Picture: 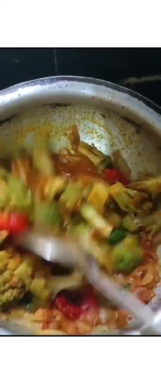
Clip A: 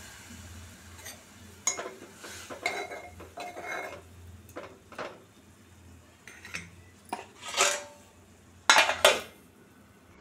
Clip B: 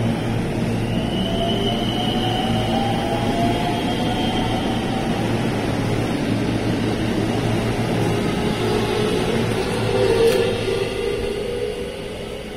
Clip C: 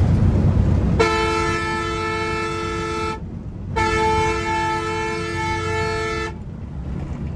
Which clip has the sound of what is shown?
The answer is A